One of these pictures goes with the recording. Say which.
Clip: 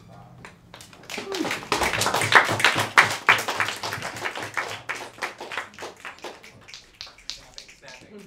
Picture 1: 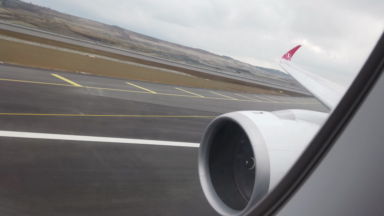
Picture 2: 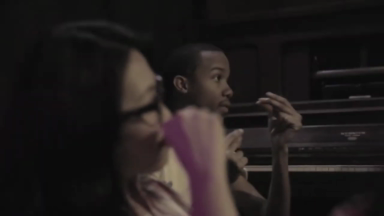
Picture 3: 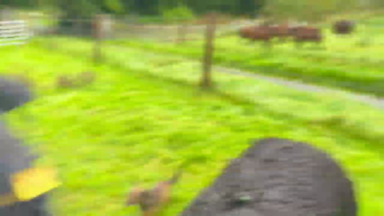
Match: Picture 2